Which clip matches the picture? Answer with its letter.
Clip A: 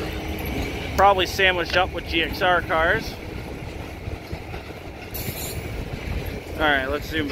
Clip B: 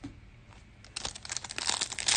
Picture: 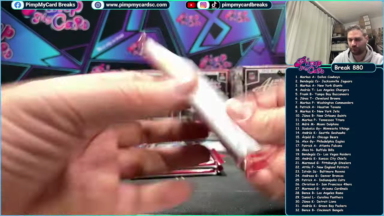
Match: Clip B